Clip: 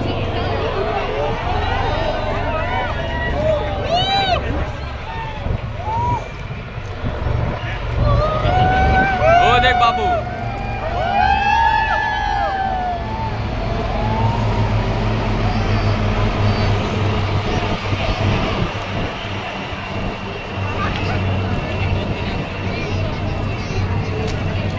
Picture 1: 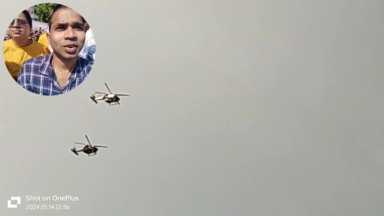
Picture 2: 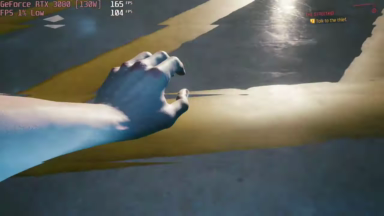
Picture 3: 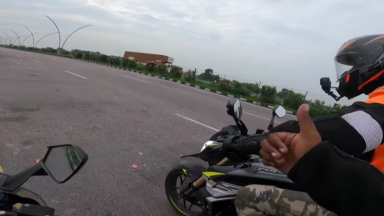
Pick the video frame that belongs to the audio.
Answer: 1